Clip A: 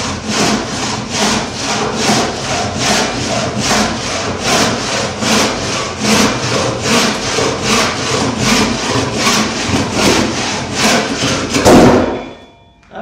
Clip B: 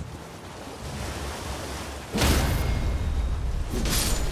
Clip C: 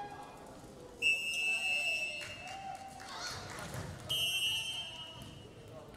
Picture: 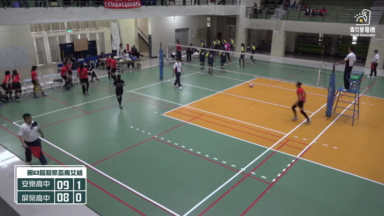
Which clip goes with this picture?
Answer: C